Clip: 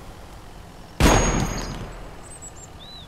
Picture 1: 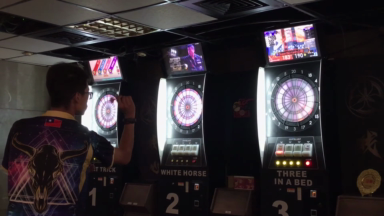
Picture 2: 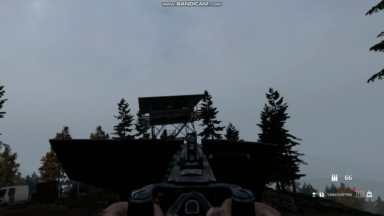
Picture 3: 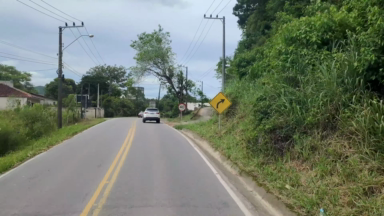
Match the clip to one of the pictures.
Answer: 2